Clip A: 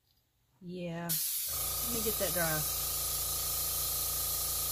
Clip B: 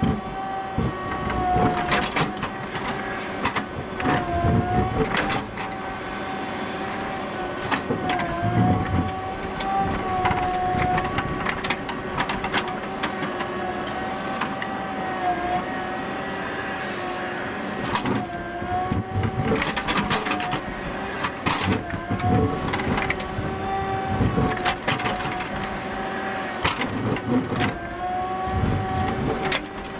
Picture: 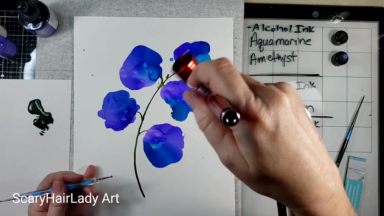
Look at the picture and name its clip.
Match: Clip A